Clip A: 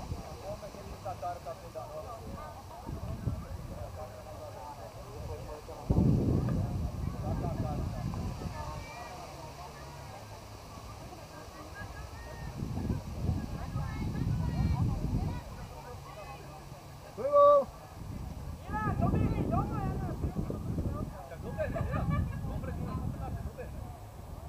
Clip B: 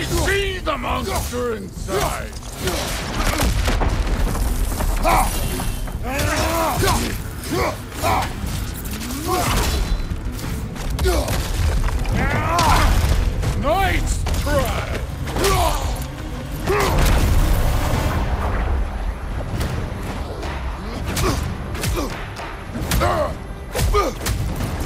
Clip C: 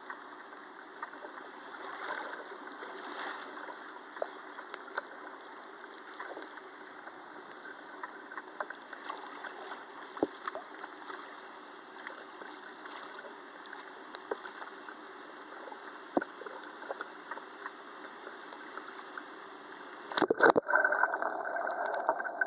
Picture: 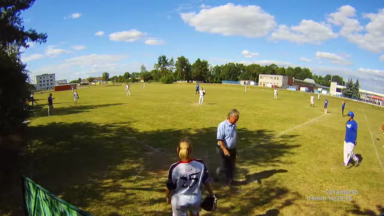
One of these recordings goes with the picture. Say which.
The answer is A